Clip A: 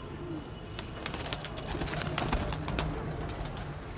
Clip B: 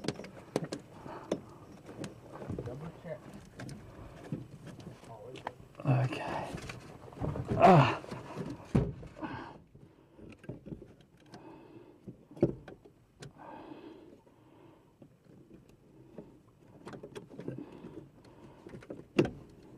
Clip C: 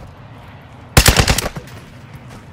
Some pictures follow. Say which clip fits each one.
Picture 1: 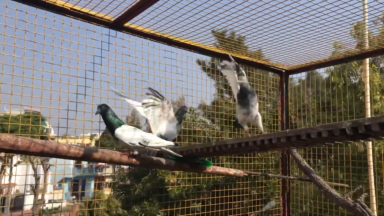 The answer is A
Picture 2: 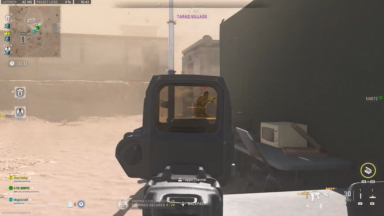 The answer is C